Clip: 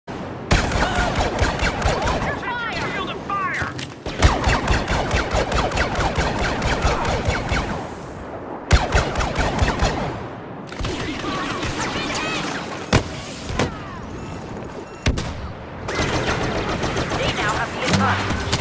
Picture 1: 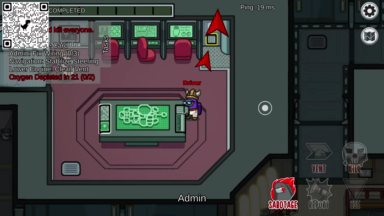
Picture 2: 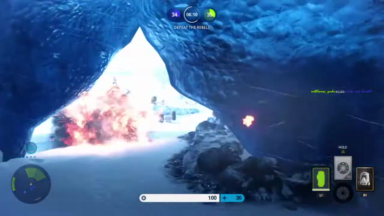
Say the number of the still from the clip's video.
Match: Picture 2